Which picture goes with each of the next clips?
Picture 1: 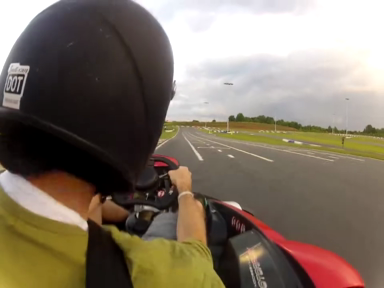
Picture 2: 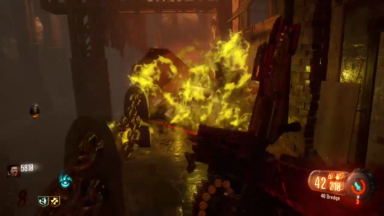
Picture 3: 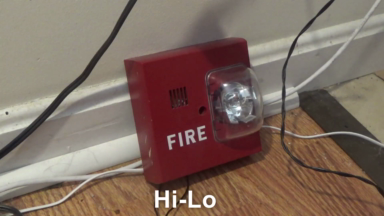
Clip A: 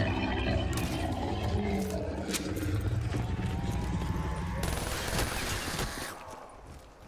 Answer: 2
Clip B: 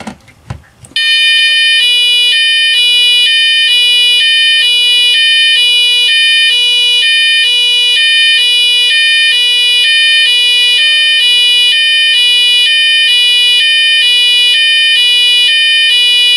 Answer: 3